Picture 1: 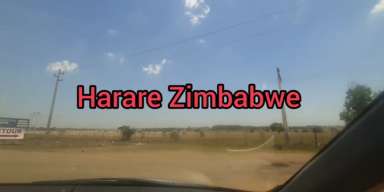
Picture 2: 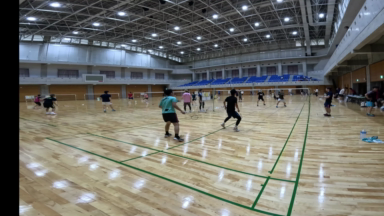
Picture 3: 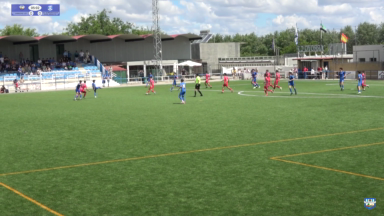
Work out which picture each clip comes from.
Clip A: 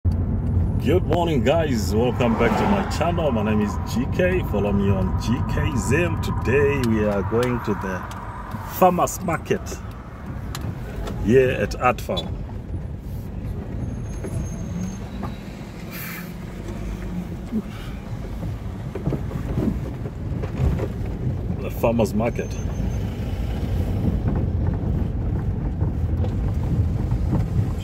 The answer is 1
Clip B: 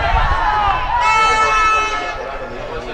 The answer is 3